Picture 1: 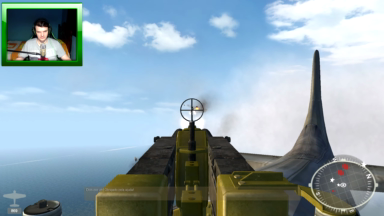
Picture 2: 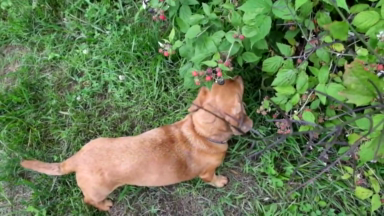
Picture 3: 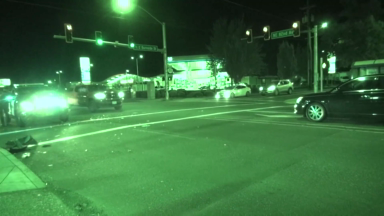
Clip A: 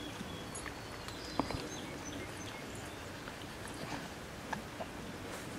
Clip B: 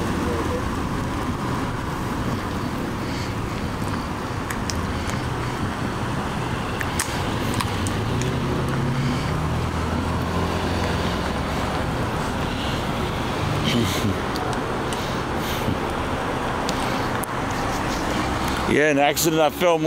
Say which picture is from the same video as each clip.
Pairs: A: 2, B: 3